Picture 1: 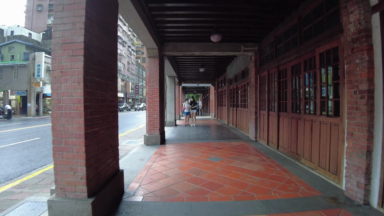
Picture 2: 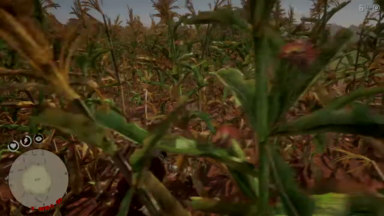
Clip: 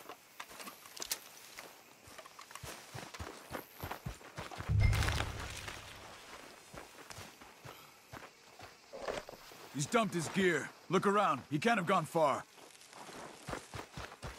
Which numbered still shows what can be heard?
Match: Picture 2